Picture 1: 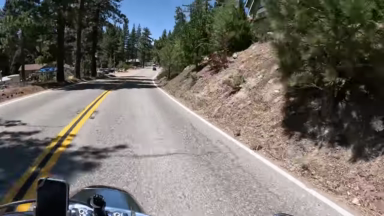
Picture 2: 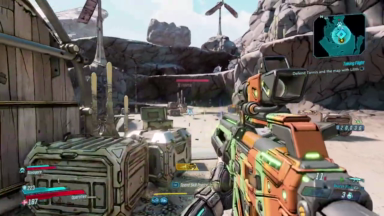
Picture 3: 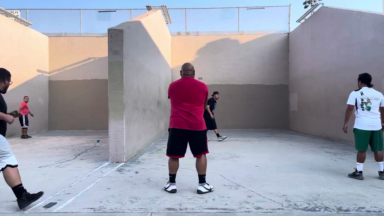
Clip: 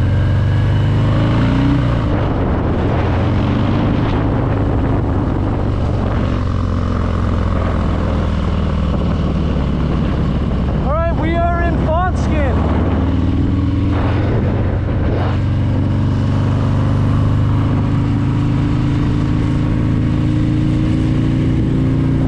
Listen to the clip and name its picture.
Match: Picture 1